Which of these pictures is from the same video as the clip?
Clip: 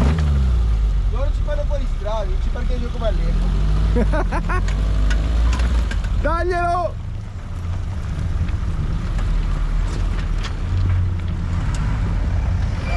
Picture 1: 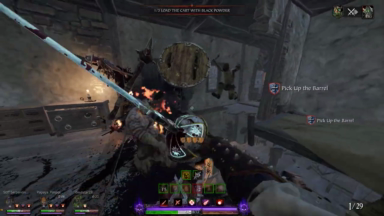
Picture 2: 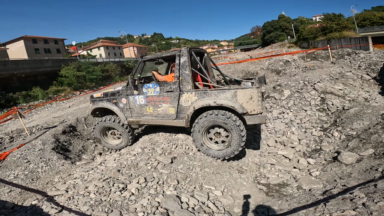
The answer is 2